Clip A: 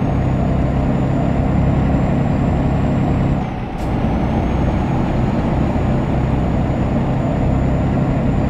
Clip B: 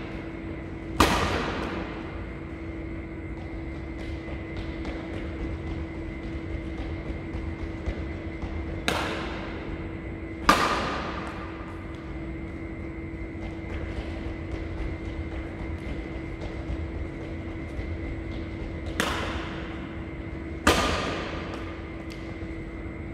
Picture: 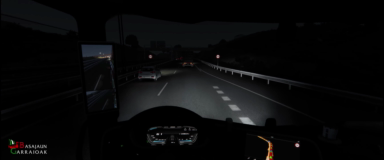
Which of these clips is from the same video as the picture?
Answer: A